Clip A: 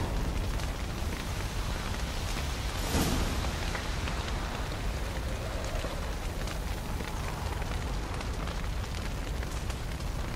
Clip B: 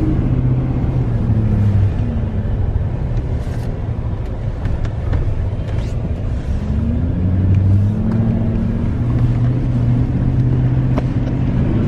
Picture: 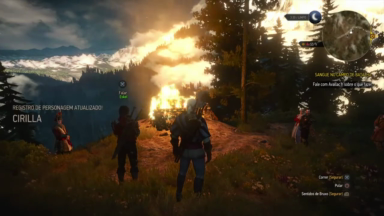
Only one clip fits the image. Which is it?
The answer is A